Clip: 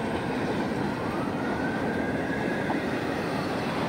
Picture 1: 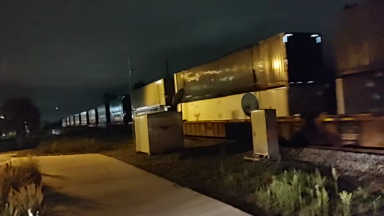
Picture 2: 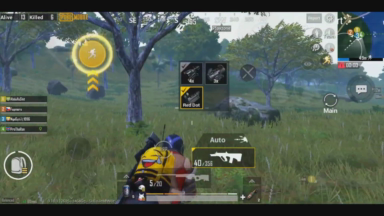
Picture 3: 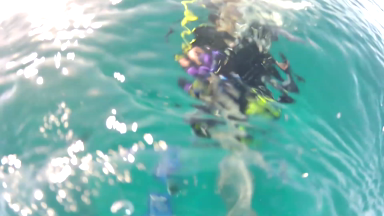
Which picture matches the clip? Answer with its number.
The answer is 1